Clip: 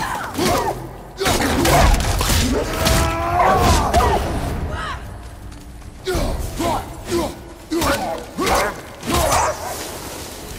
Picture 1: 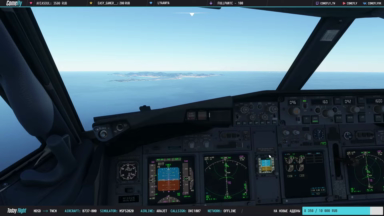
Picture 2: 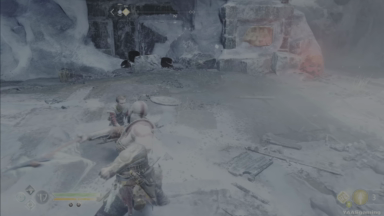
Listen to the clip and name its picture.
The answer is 2